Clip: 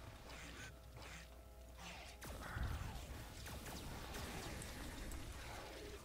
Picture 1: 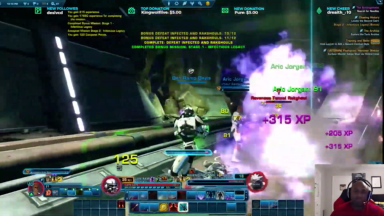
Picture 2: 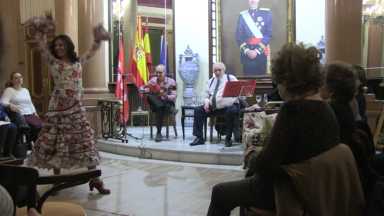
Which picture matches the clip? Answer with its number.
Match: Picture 1